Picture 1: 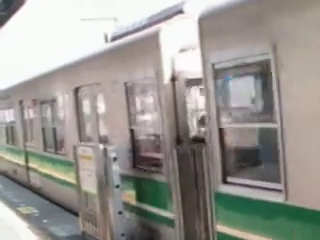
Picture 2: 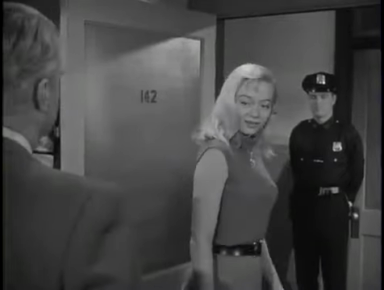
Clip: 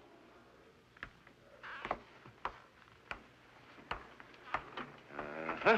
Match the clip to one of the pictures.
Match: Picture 2